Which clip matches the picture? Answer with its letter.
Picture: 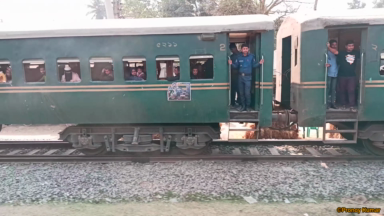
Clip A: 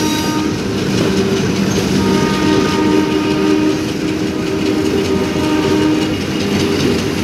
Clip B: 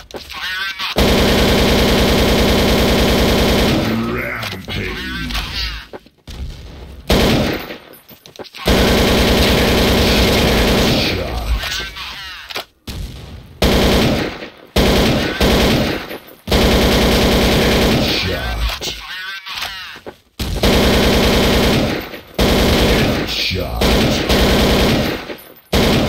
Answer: A